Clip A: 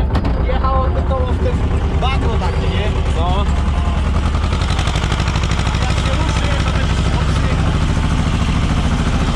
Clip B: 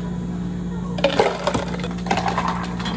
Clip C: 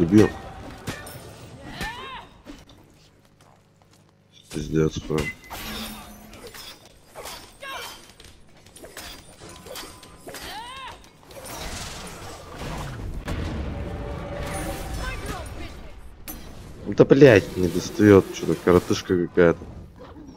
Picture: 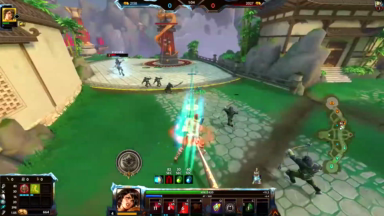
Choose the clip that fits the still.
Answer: C